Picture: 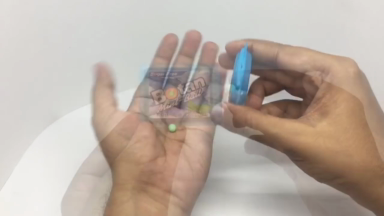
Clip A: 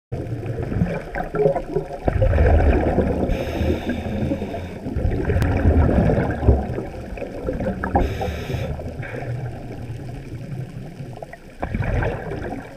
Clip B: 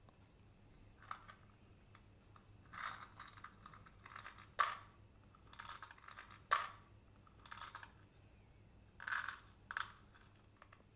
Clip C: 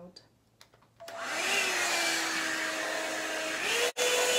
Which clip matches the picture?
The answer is B